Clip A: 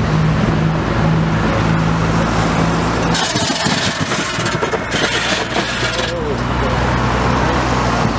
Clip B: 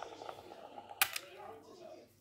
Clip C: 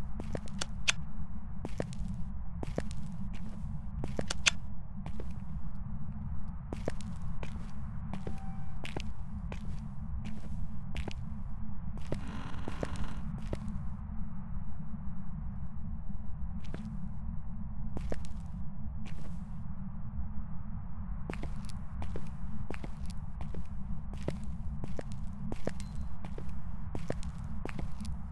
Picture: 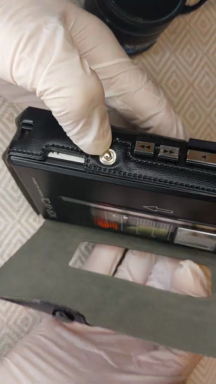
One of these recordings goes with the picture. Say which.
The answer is B